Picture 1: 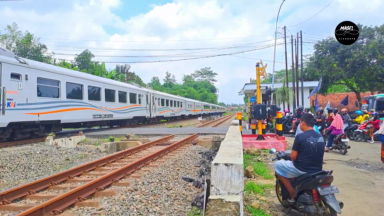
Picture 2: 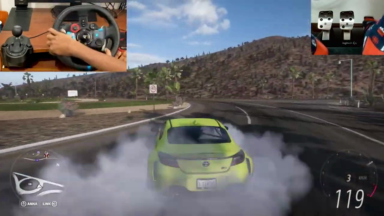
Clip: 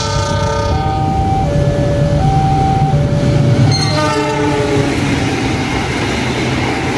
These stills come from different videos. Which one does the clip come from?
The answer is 1